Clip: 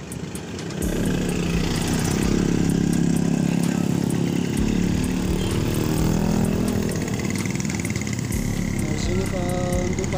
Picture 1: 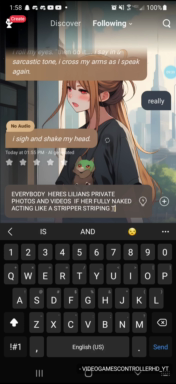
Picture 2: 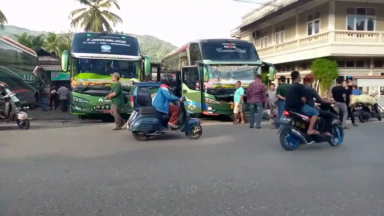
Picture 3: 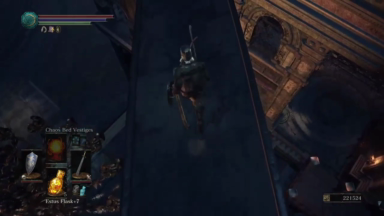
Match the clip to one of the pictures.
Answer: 2